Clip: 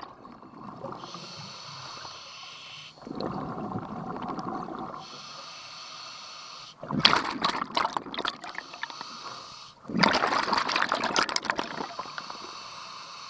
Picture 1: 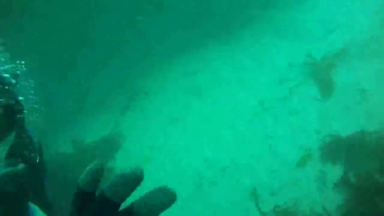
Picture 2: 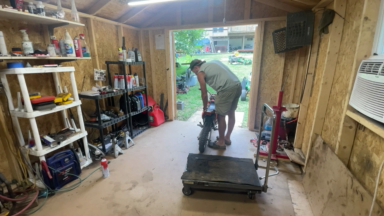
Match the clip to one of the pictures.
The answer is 1